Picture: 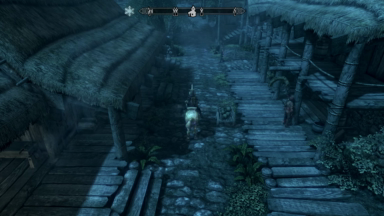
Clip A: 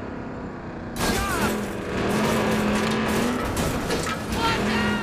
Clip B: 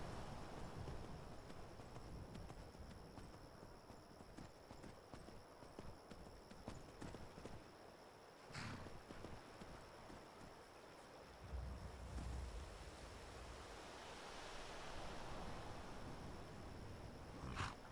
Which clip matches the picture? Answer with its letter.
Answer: B